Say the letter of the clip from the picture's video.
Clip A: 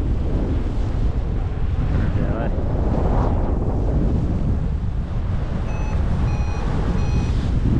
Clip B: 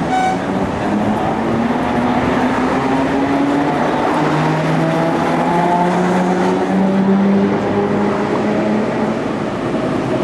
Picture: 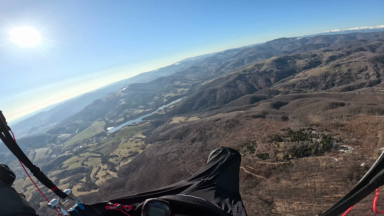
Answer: A